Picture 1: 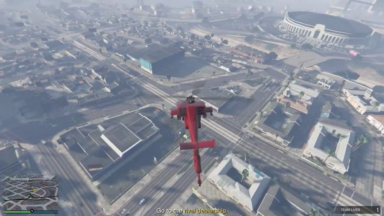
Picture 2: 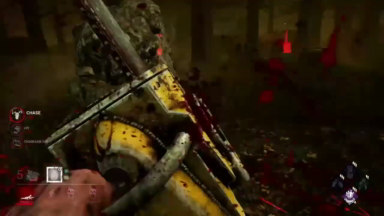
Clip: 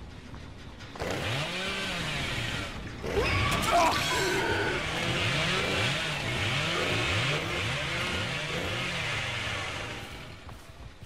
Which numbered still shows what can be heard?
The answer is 2